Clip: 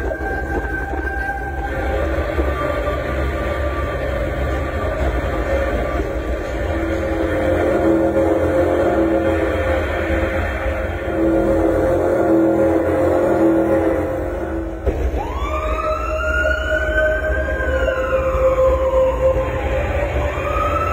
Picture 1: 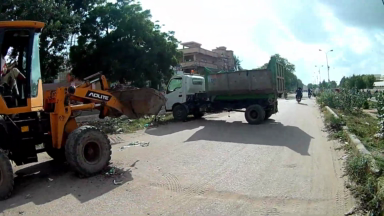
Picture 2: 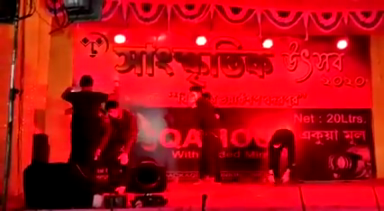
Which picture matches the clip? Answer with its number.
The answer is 2